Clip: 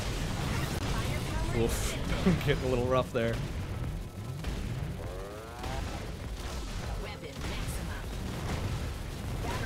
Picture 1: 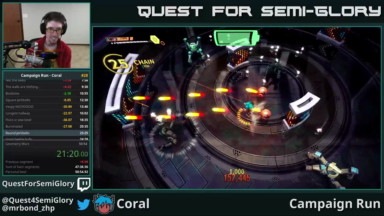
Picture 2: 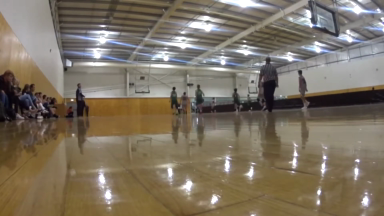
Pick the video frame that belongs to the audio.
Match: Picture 1